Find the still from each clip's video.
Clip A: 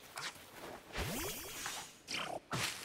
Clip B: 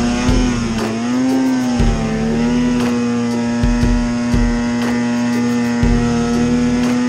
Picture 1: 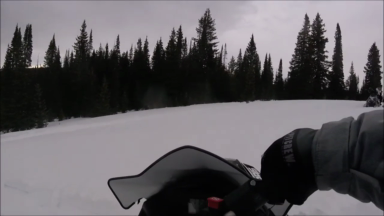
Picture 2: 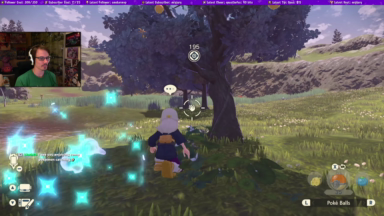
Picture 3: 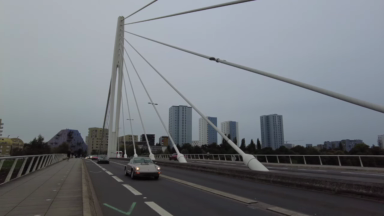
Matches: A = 2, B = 1